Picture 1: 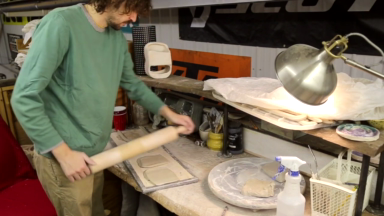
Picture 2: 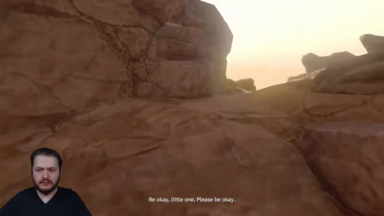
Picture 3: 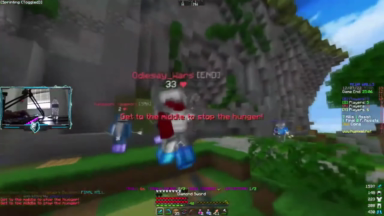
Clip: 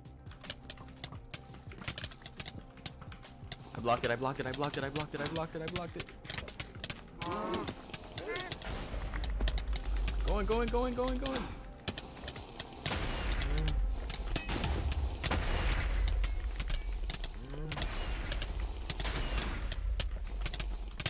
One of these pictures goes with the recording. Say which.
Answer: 3